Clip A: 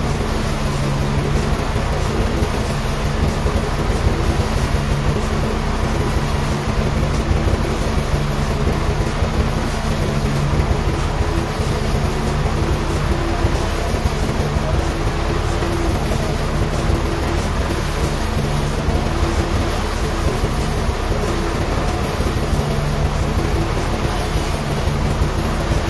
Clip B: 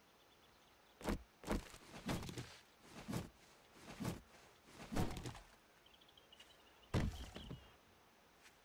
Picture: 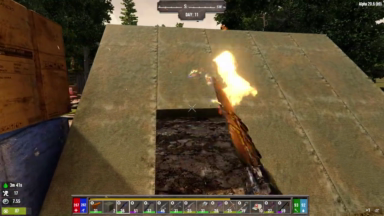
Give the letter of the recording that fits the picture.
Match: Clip B